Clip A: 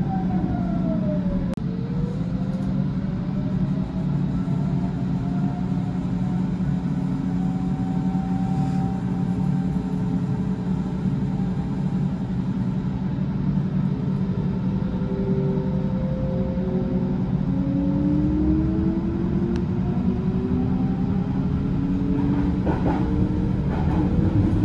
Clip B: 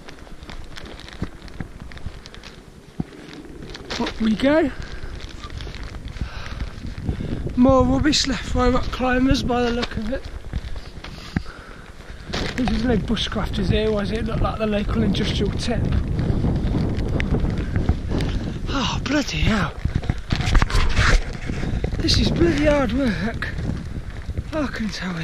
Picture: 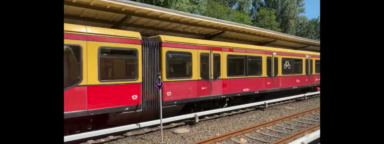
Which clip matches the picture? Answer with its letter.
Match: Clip A